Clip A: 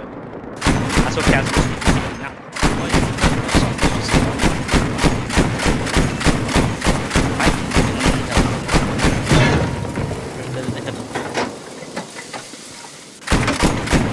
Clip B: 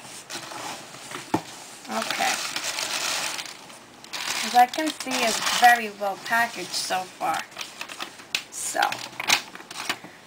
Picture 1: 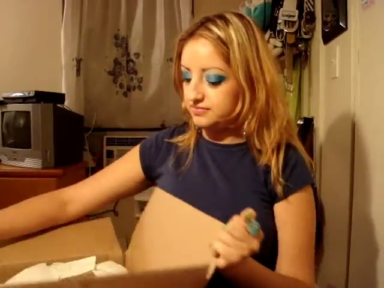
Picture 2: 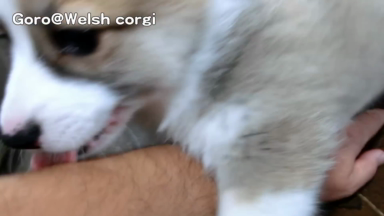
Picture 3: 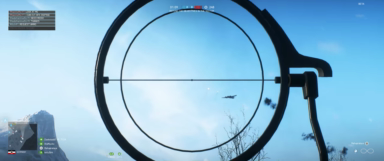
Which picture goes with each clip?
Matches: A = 3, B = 1